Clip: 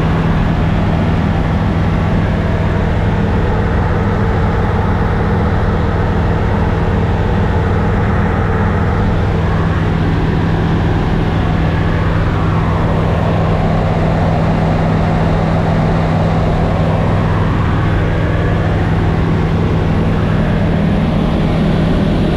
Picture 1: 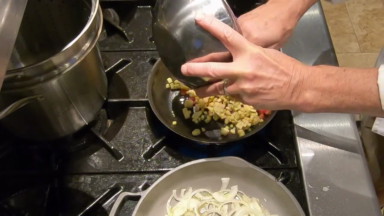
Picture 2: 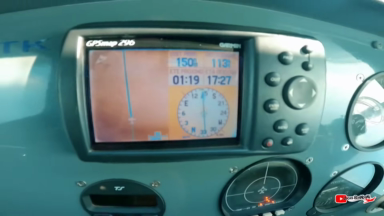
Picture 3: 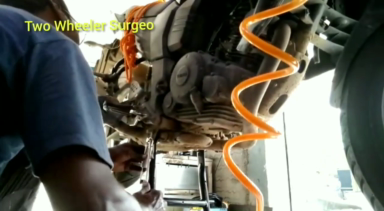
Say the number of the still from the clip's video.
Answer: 2